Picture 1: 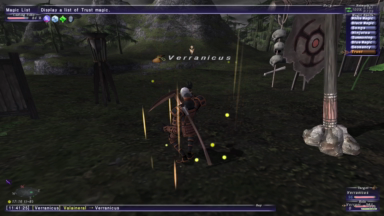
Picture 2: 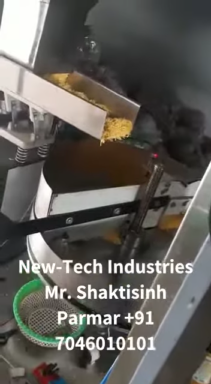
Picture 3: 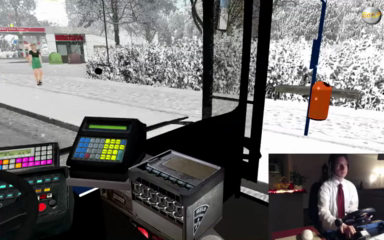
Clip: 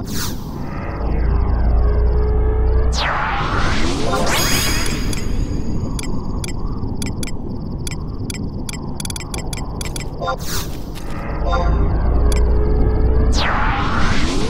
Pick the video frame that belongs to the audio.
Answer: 1